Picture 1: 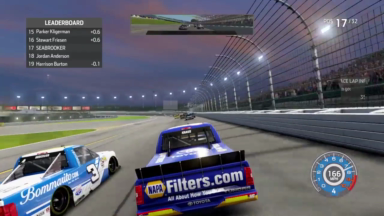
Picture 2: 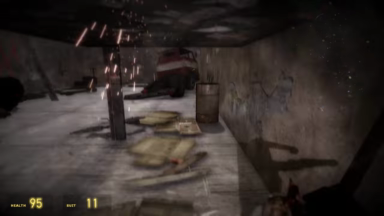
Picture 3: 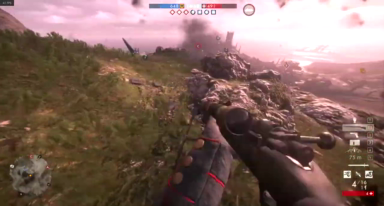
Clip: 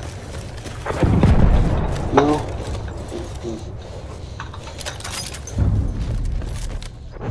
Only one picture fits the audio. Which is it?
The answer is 3